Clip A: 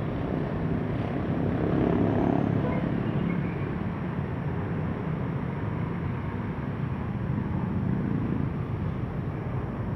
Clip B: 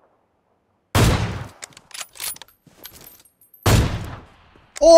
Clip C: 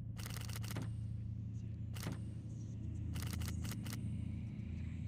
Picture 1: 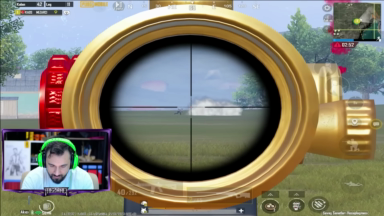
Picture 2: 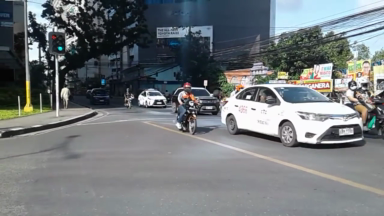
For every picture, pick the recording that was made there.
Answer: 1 B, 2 A